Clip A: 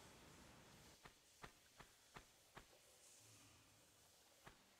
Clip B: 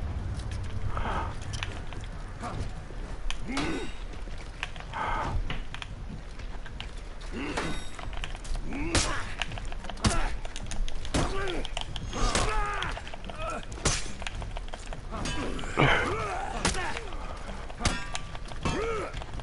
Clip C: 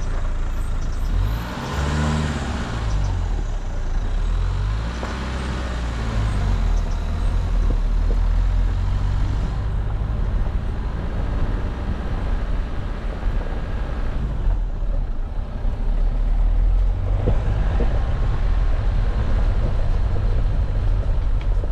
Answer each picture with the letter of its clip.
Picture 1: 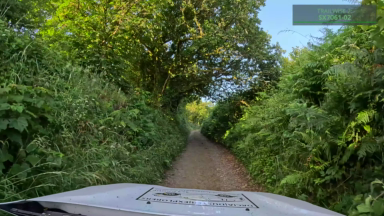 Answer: C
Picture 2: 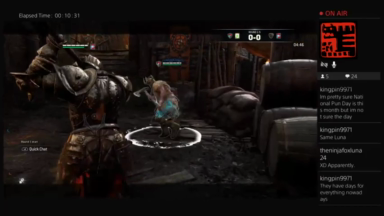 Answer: B